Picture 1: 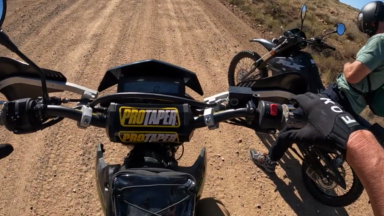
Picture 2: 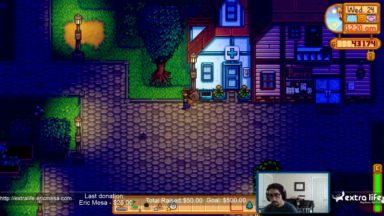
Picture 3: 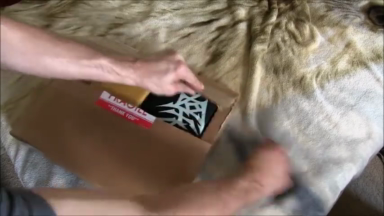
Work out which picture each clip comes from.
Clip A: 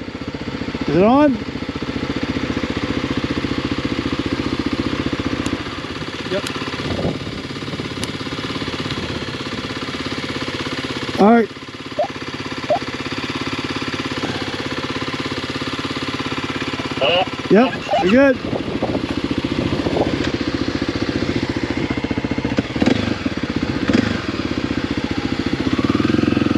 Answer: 1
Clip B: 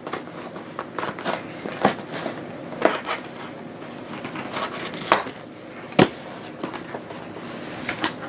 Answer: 3